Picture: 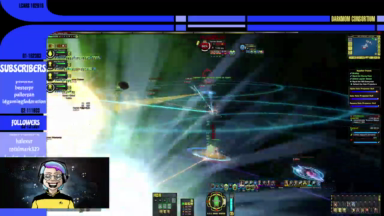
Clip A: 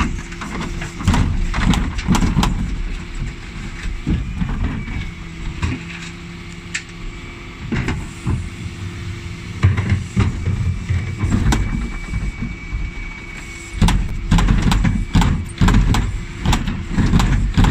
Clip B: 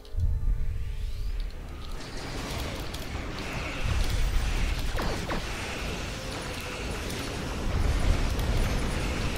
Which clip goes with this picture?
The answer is B